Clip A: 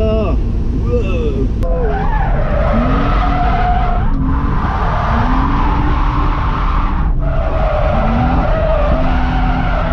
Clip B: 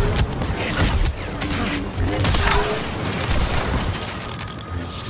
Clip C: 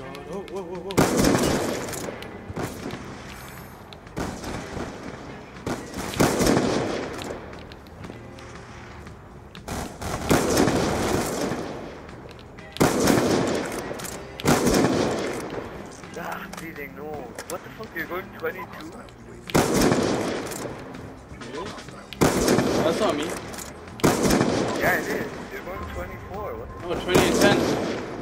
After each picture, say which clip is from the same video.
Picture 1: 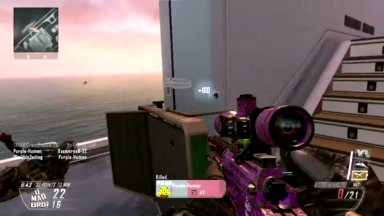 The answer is C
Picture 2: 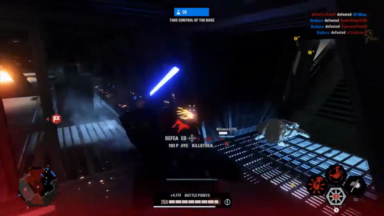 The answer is B